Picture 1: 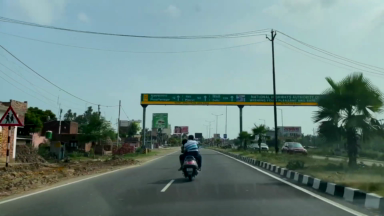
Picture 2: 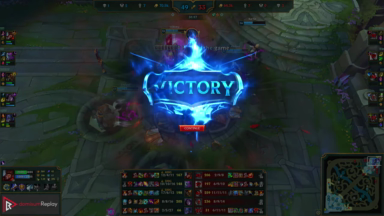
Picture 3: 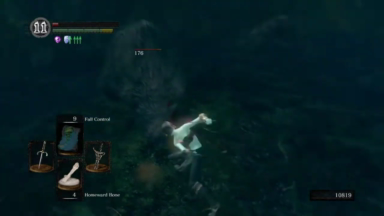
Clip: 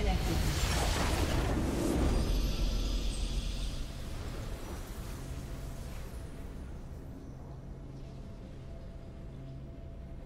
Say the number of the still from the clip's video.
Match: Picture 2